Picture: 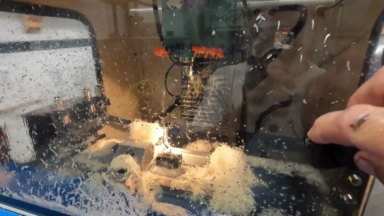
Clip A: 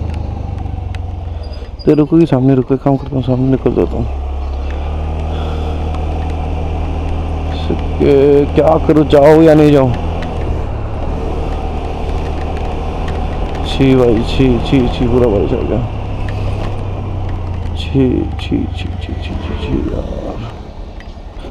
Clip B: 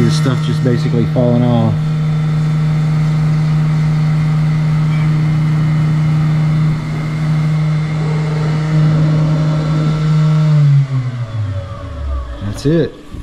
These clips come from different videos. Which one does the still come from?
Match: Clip B